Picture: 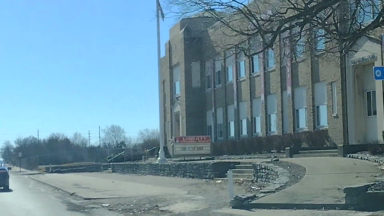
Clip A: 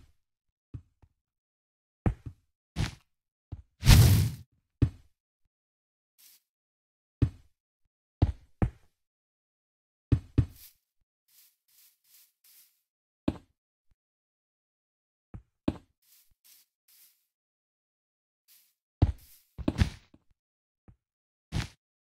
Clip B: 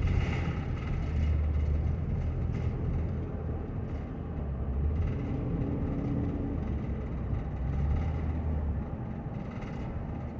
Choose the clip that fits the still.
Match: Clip B